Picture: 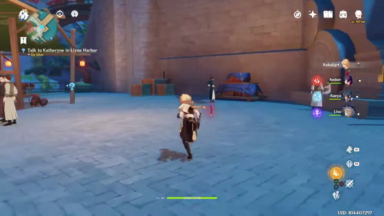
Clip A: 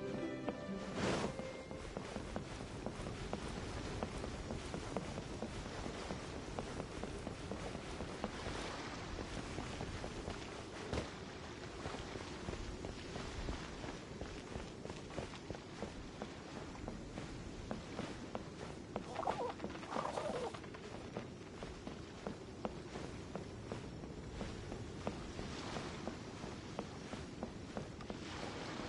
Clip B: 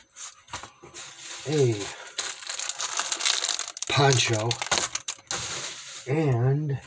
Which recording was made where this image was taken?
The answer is A